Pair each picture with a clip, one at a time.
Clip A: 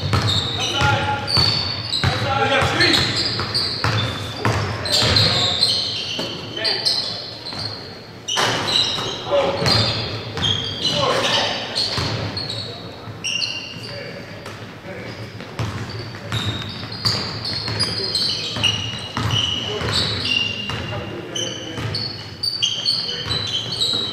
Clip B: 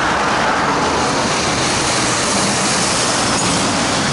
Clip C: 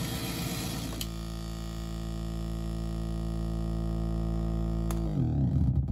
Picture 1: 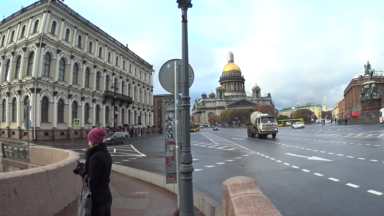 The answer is B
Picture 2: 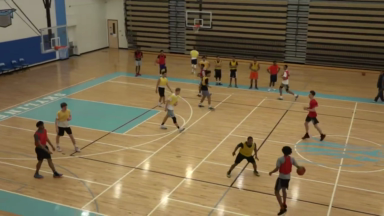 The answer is A